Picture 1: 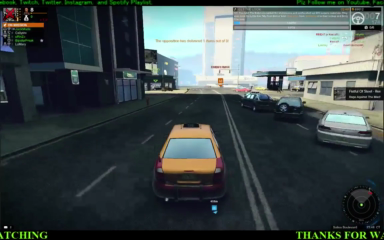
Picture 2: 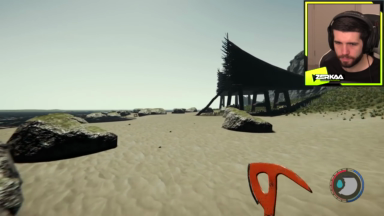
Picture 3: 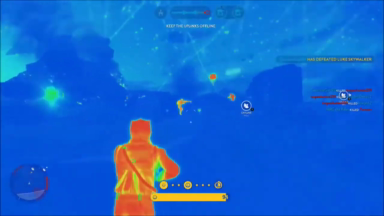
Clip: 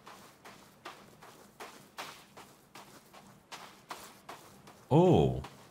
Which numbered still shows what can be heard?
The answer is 2